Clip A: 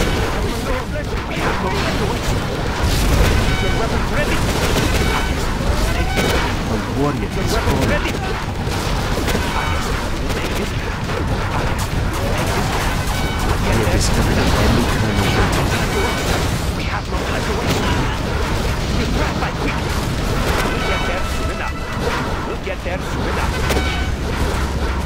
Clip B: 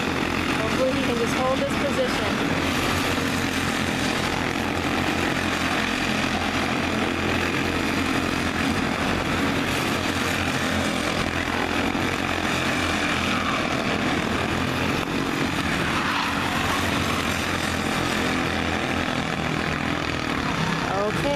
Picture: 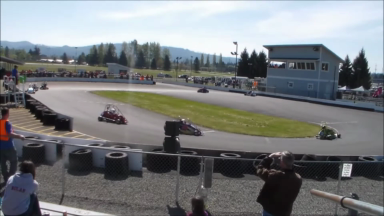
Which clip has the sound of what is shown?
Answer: B